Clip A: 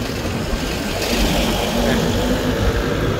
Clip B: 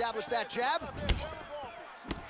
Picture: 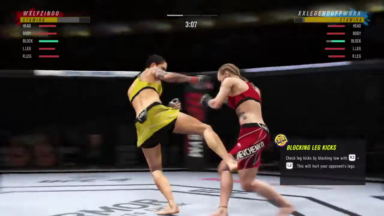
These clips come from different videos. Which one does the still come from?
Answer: B